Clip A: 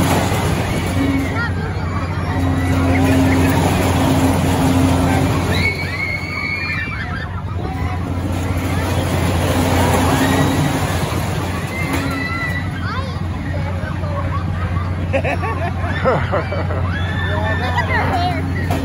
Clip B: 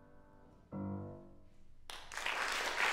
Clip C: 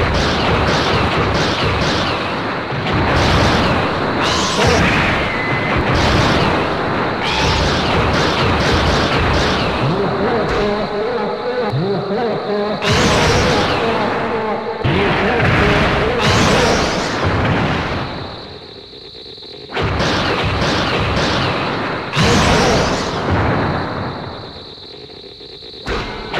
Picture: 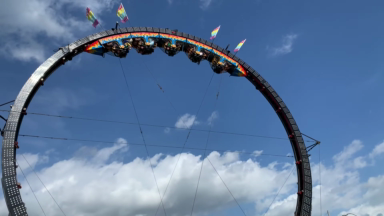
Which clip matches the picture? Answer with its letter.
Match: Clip A